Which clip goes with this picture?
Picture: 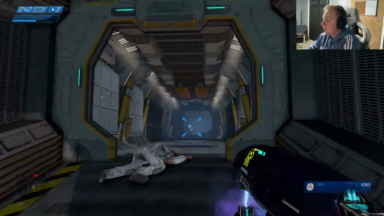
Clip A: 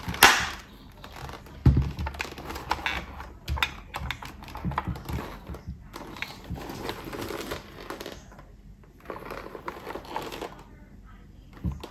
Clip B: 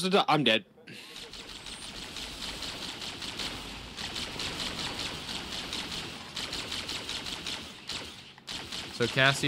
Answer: B